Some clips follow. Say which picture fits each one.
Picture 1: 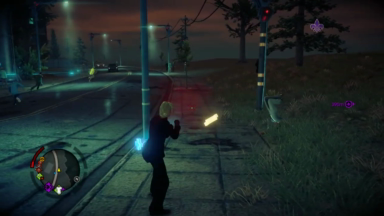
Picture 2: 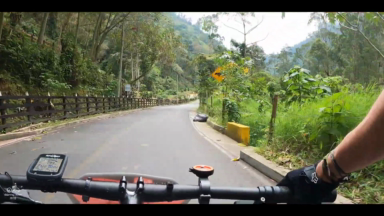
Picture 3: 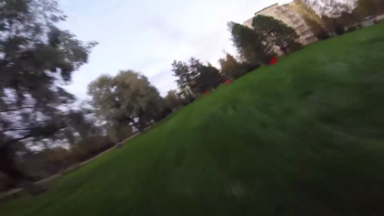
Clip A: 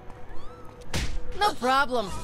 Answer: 1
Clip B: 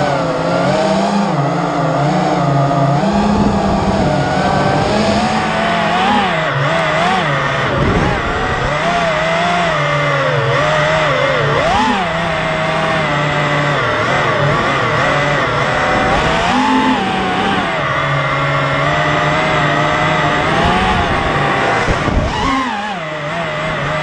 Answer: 3